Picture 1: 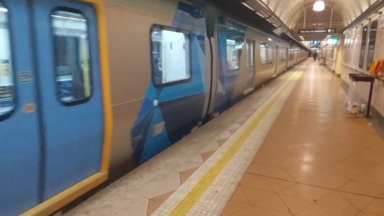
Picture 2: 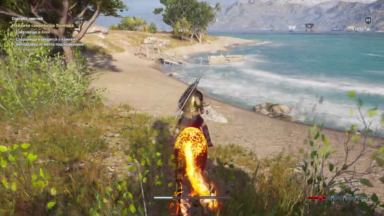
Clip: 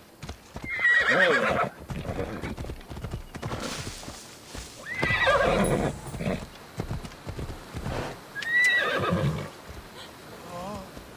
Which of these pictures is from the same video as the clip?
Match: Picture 2